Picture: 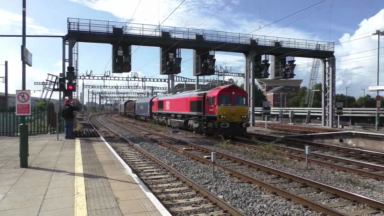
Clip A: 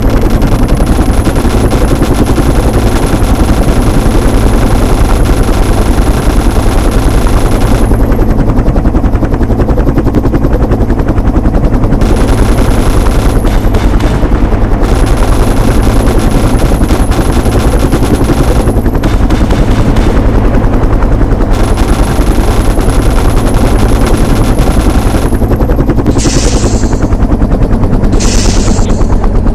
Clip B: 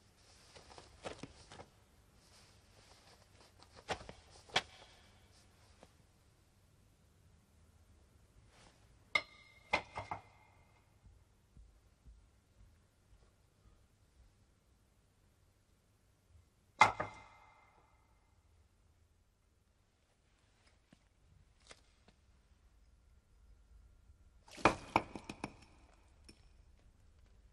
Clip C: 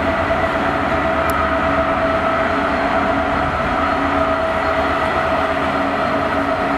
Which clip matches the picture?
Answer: C